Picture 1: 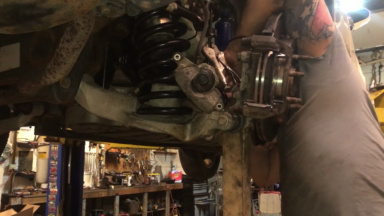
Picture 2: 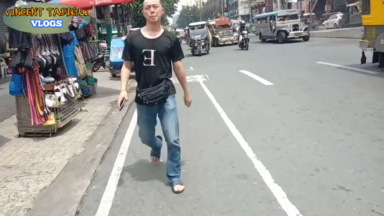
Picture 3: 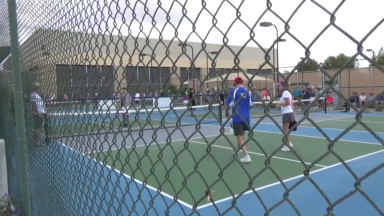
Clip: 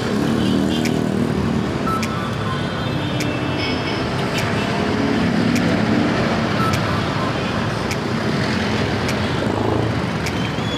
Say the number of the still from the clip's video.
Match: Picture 2